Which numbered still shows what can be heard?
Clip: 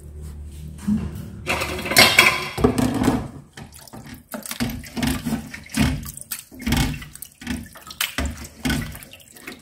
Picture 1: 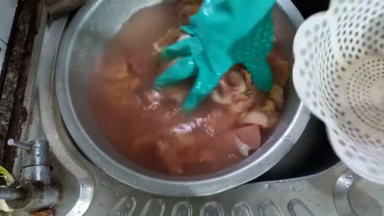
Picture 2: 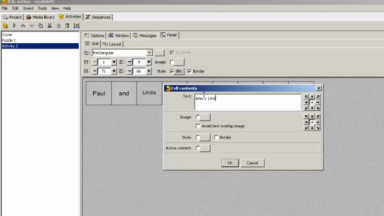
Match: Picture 1